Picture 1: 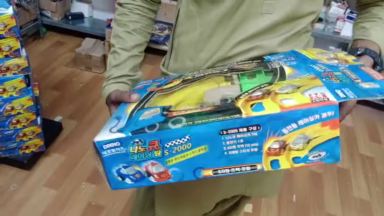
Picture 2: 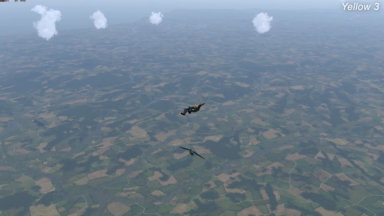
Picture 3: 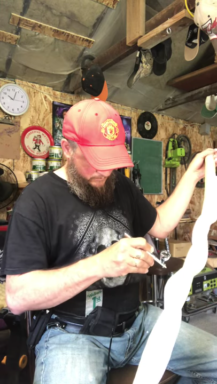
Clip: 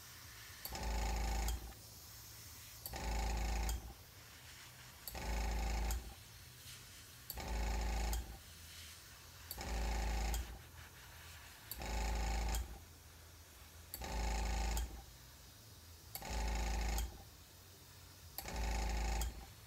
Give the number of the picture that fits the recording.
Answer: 3